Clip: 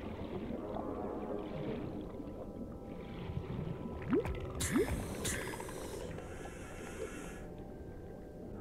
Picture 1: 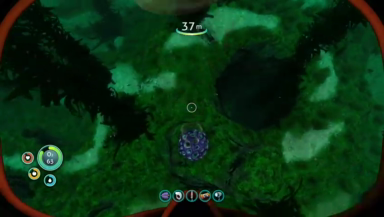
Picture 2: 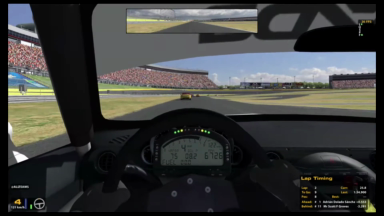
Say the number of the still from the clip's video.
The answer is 1